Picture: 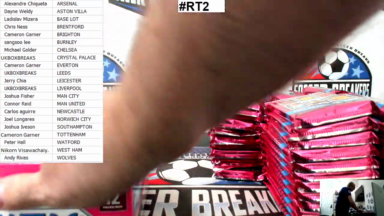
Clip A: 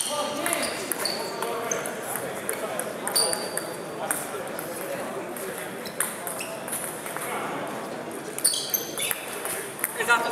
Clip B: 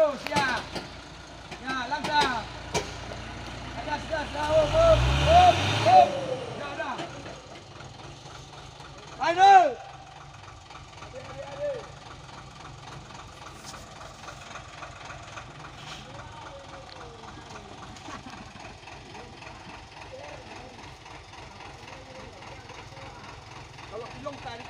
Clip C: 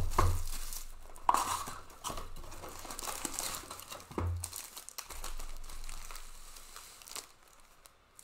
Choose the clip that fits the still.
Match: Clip C